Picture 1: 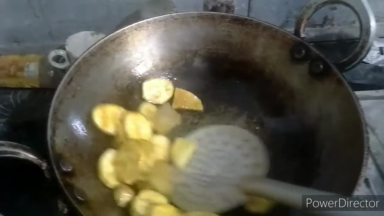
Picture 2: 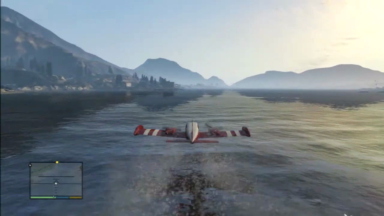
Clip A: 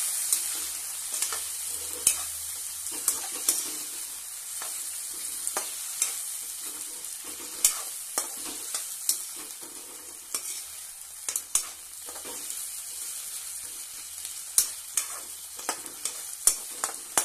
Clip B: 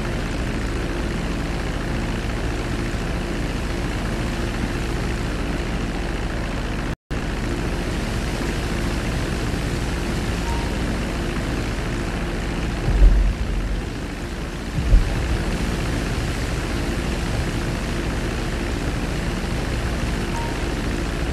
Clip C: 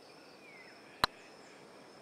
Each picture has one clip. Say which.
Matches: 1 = A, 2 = B